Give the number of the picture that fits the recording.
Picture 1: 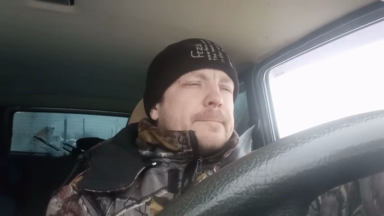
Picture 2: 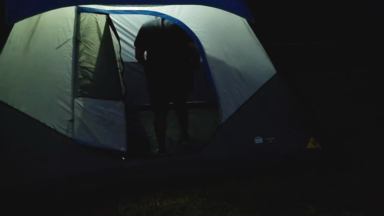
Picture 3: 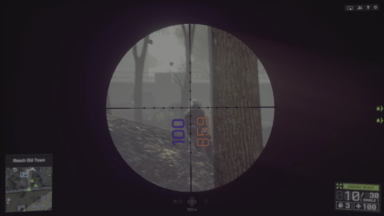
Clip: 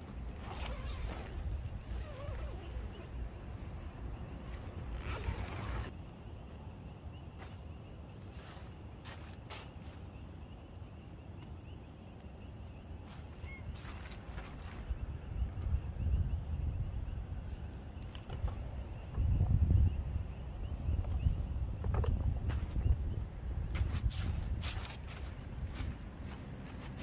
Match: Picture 2